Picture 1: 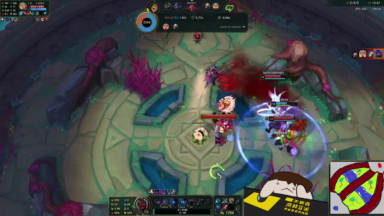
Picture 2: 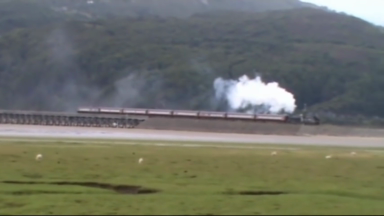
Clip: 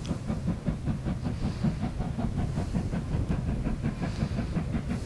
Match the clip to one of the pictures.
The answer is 2